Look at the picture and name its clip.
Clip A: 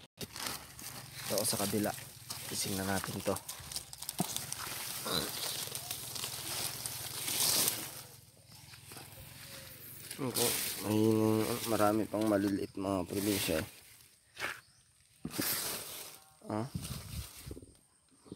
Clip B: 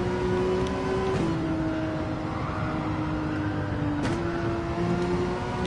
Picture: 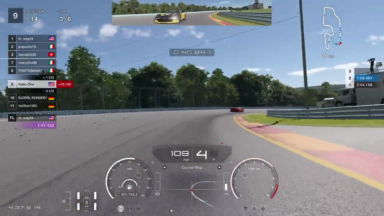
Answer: B